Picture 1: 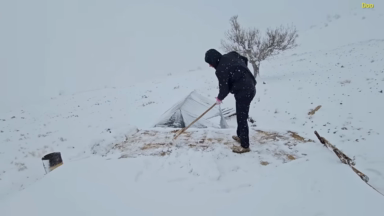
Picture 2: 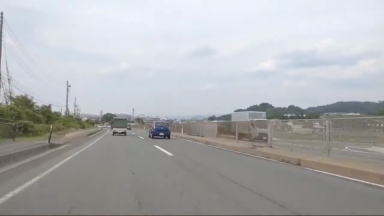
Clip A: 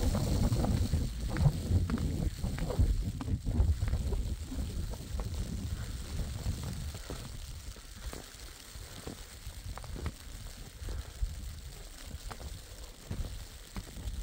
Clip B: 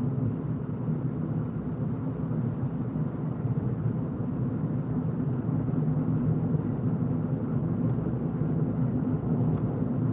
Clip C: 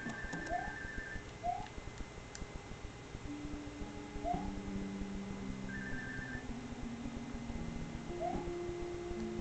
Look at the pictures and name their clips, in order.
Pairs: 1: A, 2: B